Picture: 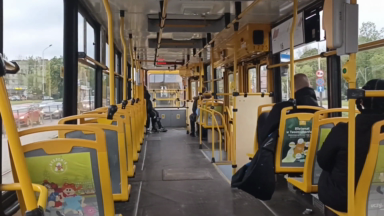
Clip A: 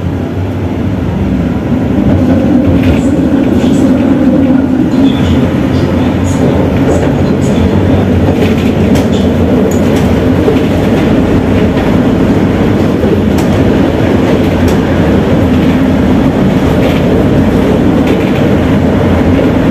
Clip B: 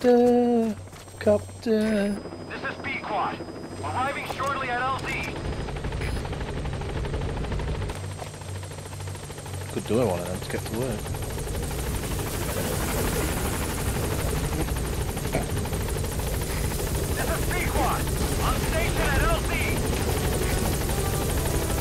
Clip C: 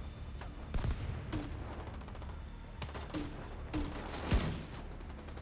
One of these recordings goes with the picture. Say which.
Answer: A